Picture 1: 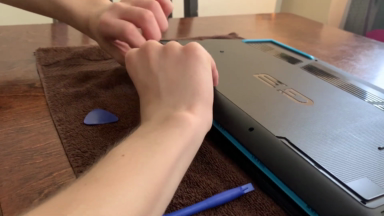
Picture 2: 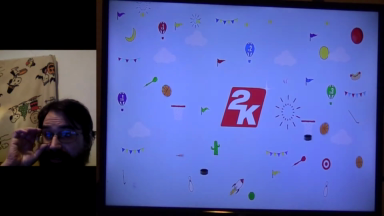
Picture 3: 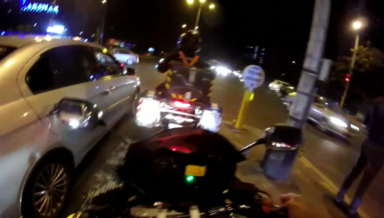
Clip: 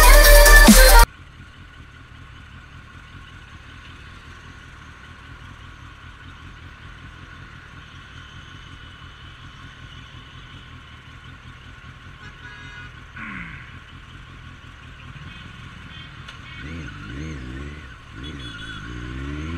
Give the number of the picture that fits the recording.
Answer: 3